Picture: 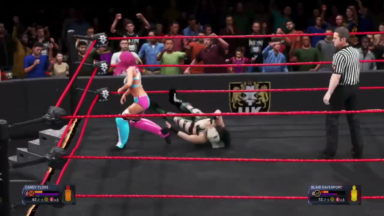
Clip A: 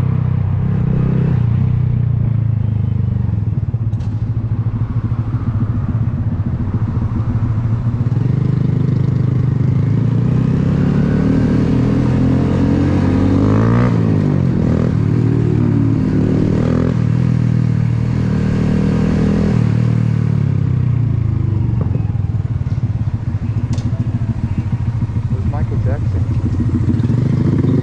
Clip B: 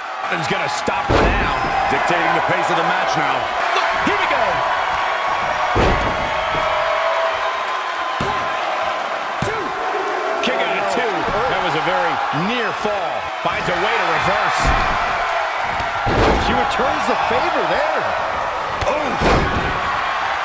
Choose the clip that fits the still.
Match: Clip B